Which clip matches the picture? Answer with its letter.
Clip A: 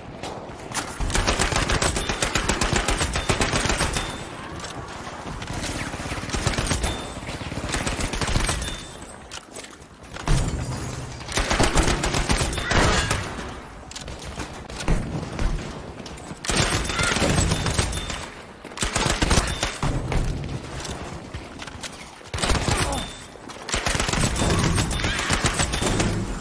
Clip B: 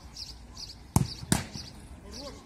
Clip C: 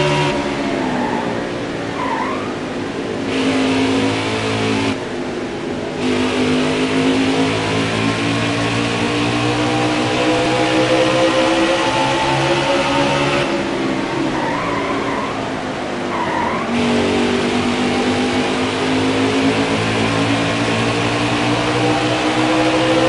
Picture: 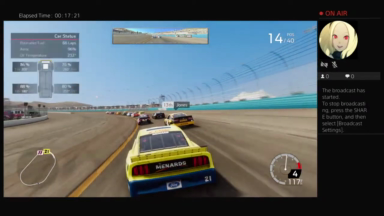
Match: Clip C